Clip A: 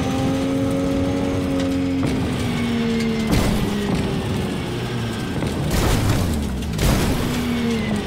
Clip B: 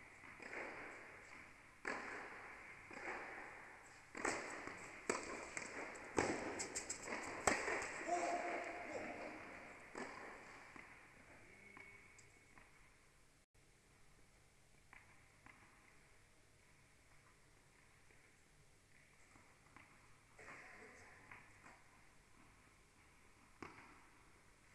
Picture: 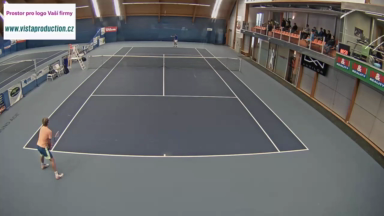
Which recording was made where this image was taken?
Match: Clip B